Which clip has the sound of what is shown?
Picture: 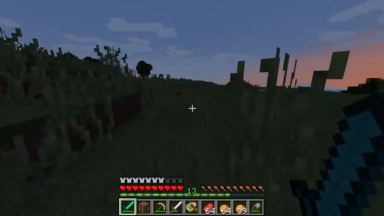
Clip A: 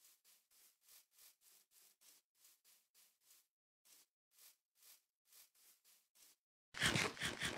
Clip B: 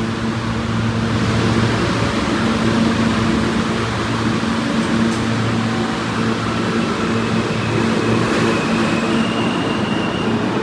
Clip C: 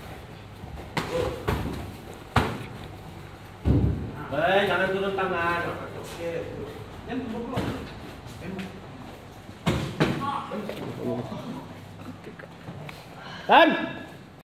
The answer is A